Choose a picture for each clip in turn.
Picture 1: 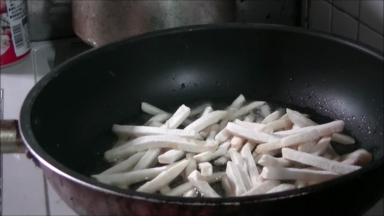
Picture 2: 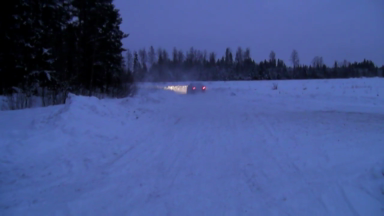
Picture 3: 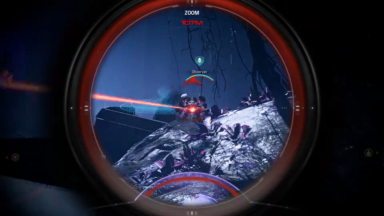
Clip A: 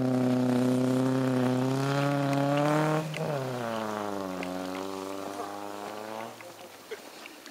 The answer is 2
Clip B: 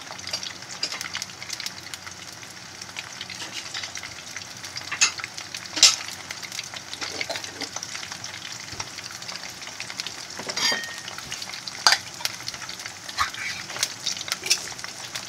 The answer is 1